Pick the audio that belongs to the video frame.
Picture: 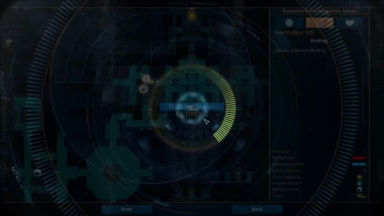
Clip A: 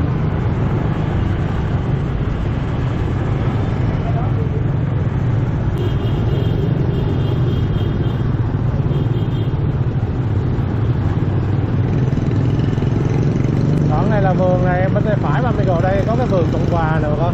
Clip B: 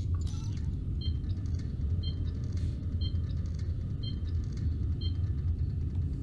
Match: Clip B